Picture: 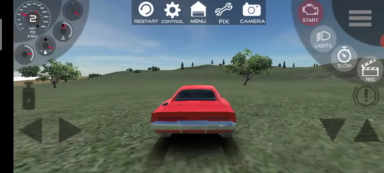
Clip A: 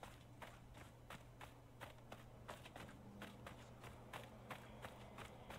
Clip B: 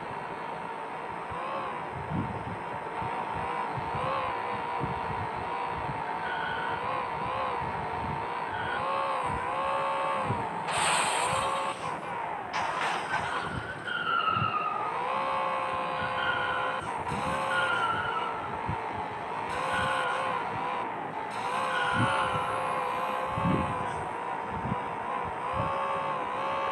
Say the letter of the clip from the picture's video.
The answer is B